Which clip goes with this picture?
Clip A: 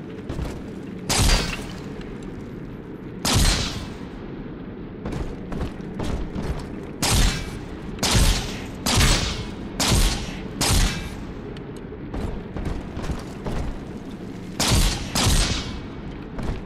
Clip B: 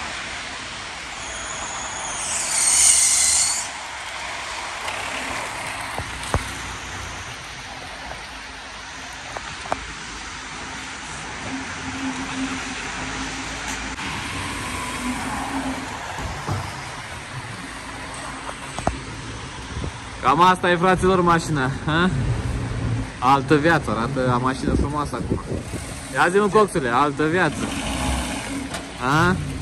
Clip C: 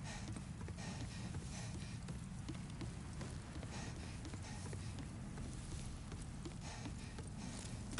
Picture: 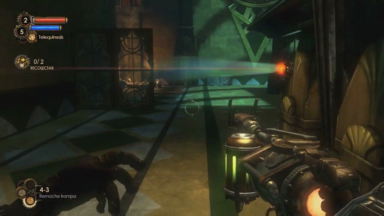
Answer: A